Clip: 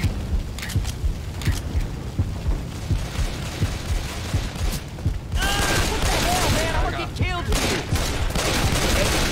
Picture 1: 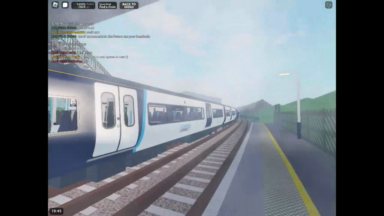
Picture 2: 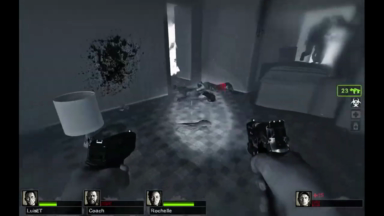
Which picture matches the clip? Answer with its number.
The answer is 2